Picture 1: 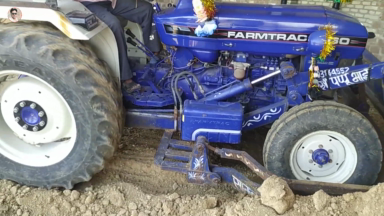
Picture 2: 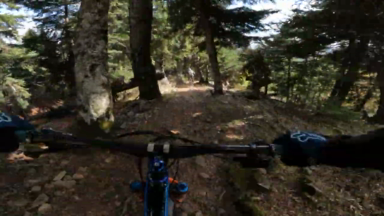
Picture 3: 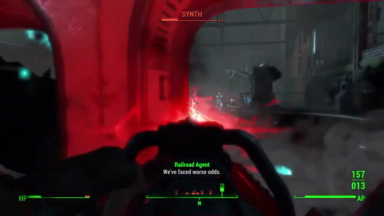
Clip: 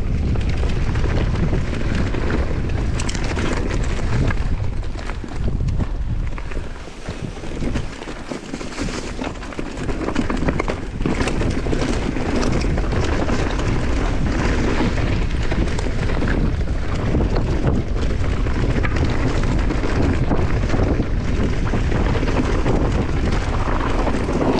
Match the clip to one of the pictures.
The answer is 2